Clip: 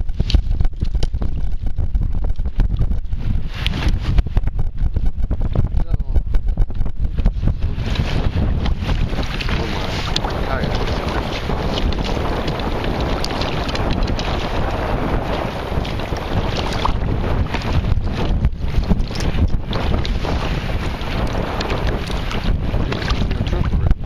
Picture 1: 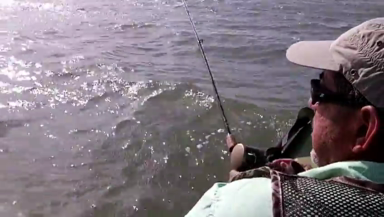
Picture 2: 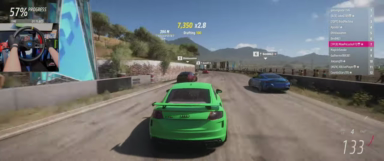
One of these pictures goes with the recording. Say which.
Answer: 1